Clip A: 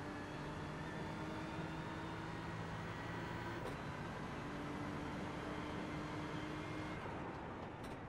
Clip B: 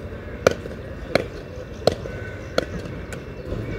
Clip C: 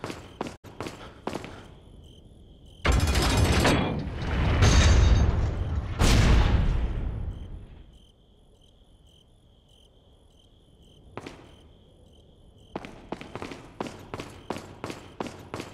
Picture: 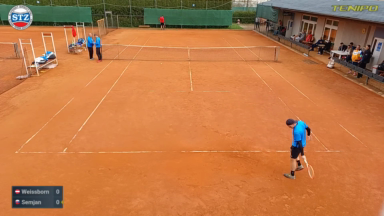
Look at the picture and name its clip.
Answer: B